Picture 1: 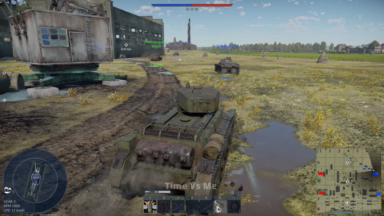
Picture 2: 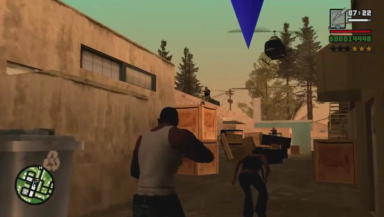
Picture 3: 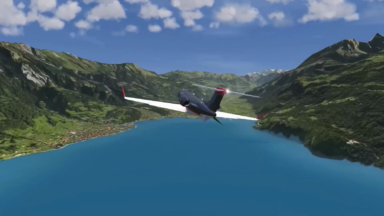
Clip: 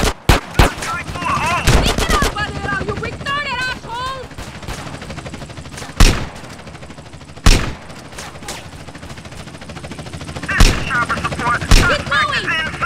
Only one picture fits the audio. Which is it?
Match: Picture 2